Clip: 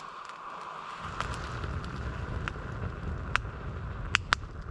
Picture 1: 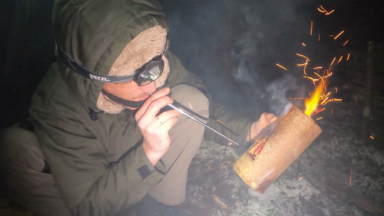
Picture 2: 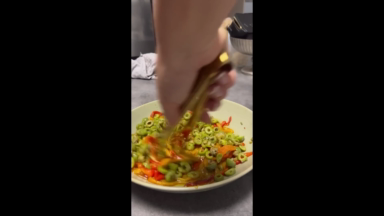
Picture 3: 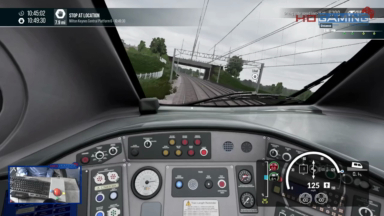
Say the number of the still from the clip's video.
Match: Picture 1